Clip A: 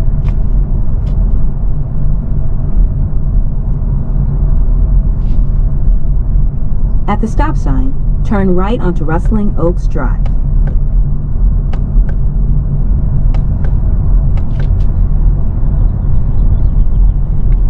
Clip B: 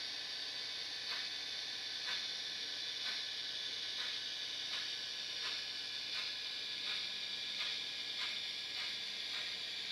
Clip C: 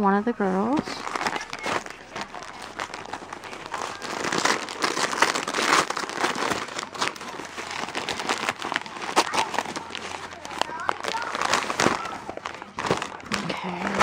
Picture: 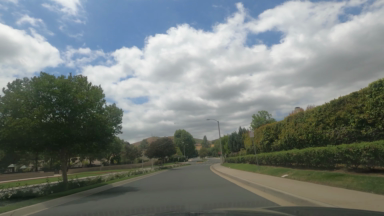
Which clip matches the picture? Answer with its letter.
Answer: A